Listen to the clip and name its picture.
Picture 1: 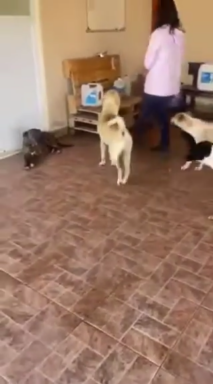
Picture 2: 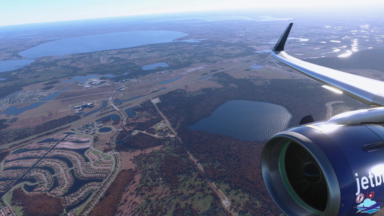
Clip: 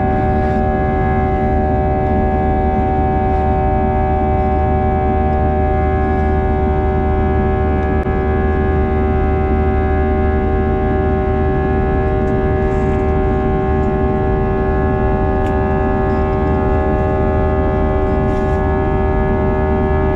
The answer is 2